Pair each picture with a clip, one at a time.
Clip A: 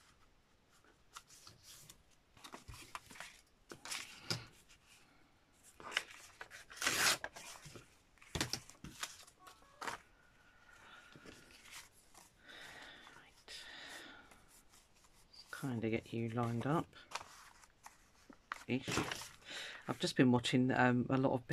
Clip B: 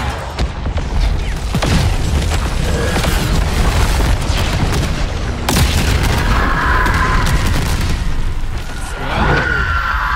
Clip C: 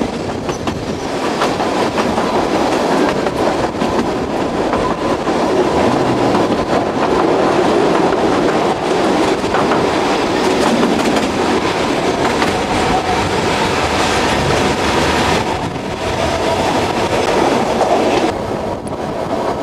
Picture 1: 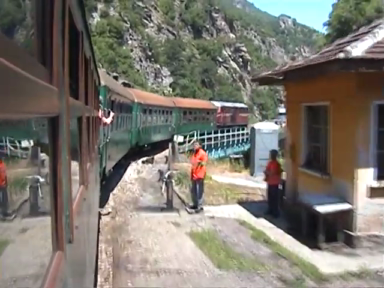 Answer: C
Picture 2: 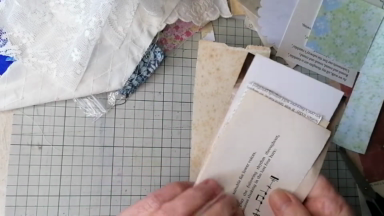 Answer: A